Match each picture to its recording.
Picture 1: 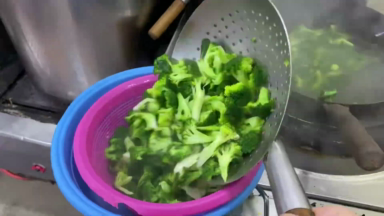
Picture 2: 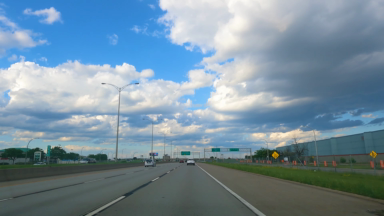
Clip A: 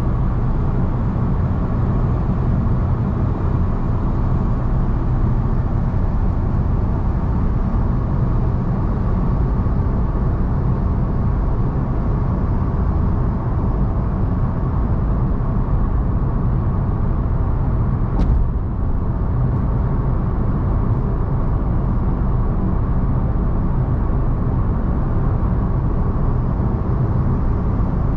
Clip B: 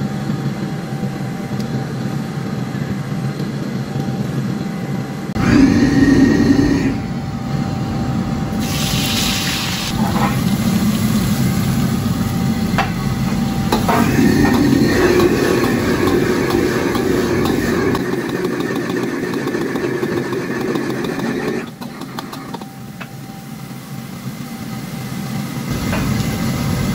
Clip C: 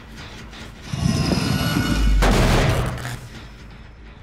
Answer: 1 B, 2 A